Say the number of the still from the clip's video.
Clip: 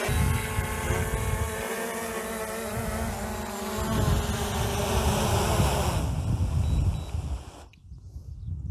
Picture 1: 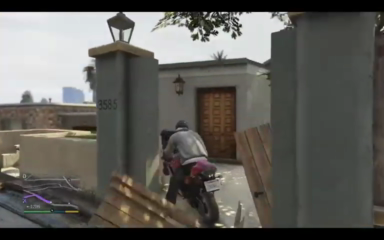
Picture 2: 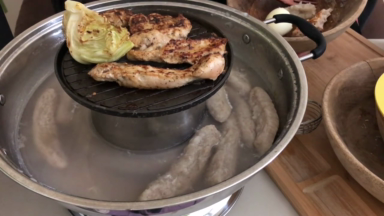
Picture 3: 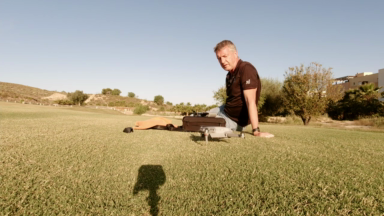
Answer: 3